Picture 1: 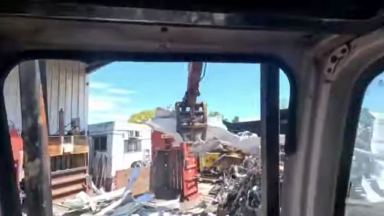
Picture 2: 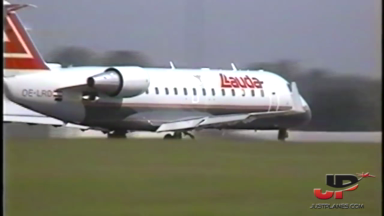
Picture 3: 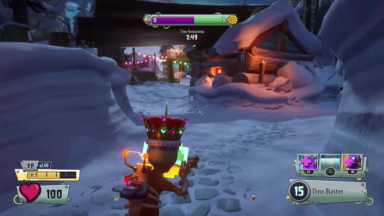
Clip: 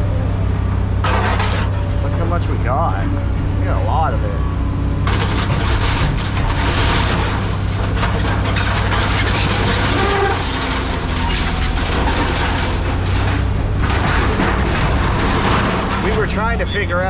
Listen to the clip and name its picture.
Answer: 1